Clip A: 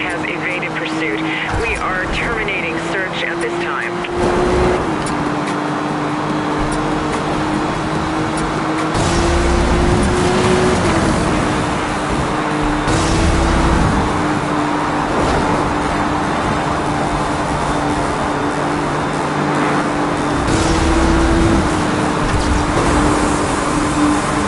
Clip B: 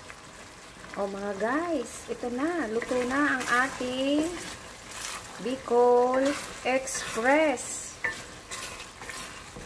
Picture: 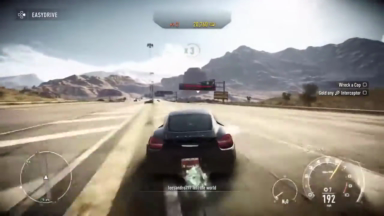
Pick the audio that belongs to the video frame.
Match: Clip A